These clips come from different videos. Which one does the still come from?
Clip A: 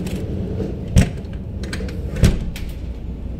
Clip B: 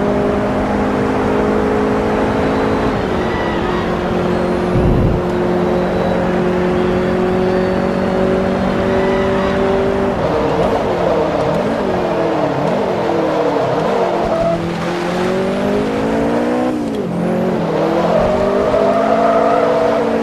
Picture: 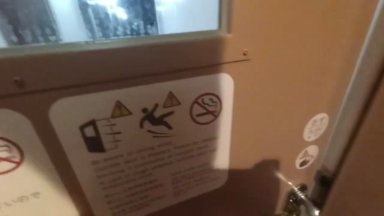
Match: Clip A